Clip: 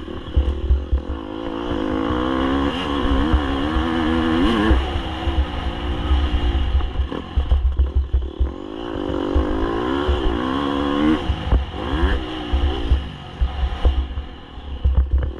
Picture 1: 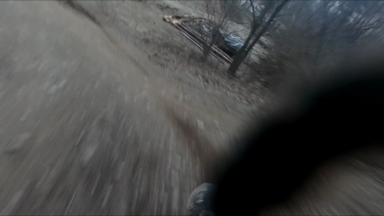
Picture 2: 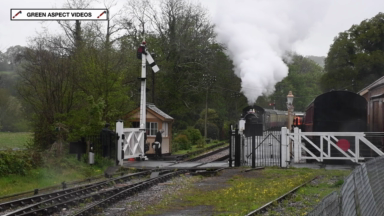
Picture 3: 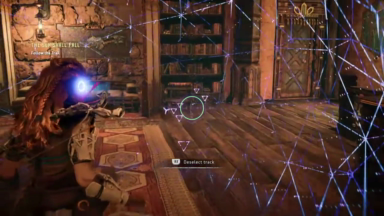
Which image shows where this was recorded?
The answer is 1